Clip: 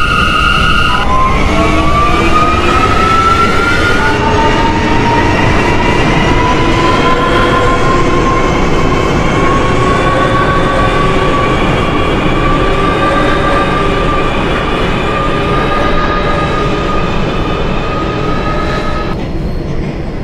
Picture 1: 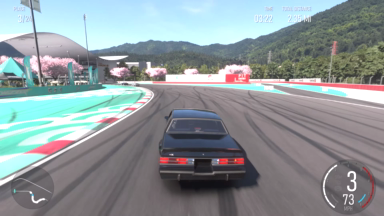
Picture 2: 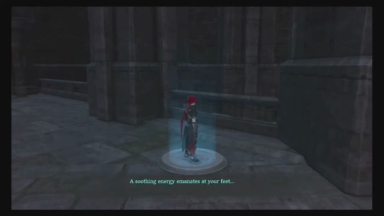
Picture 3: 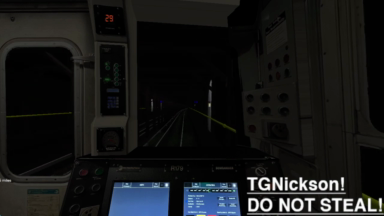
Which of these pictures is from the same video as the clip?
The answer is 3